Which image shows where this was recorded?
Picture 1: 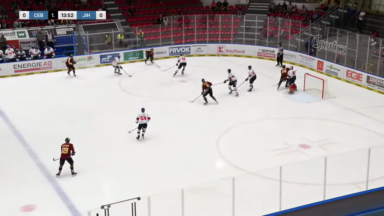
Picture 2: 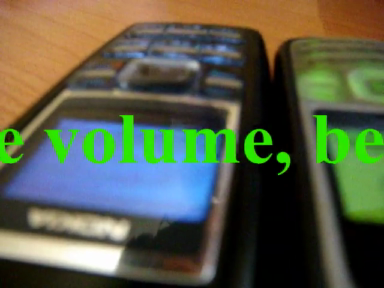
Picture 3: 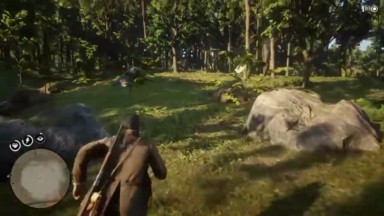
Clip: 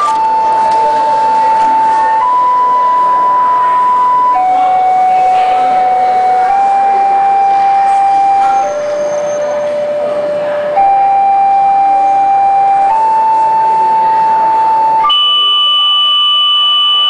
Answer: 2